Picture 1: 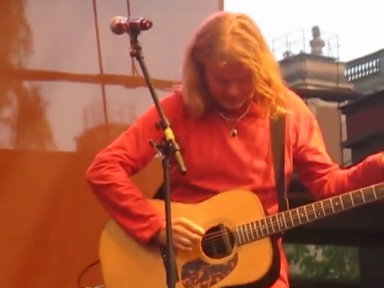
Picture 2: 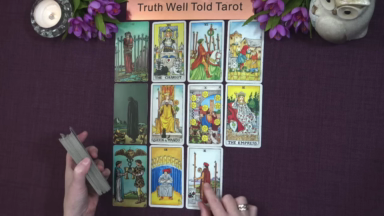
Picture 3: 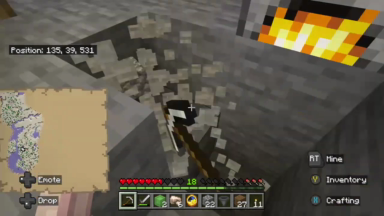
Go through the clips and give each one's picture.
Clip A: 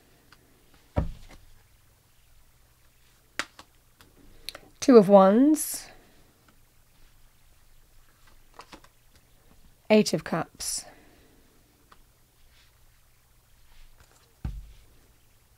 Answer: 2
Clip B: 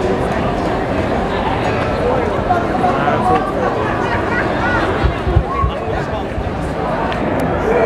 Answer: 1